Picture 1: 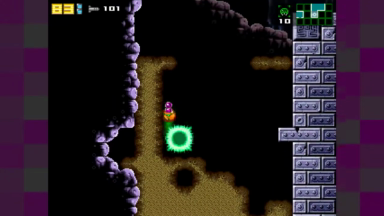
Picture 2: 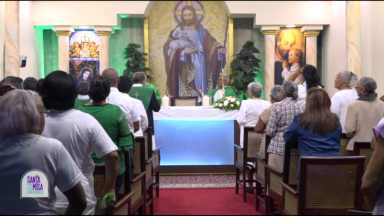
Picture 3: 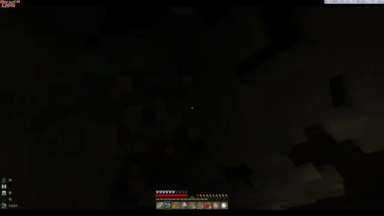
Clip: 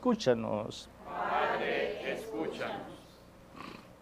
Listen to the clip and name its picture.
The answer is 2